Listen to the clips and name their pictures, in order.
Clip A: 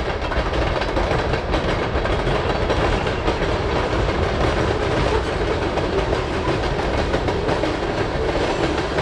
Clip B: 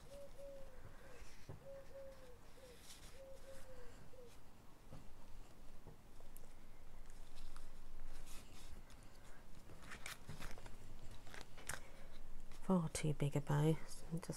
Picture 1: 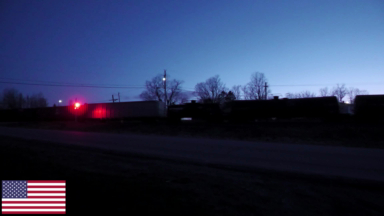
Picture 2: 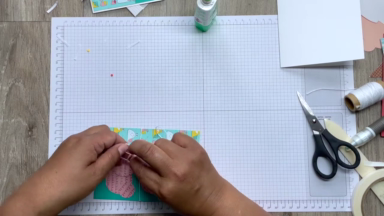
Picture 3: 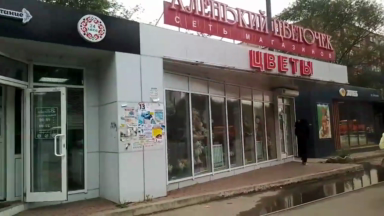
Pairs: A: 1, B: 2